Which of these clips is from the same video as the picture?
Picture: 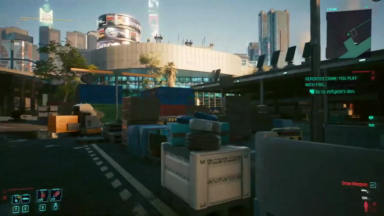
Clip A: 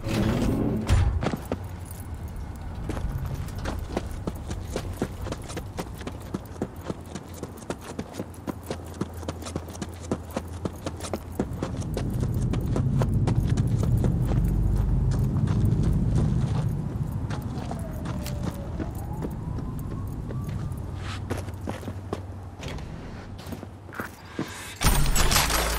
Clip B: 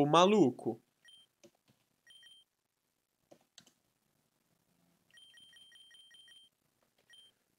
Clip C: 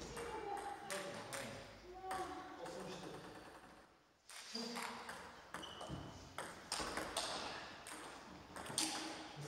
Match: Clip A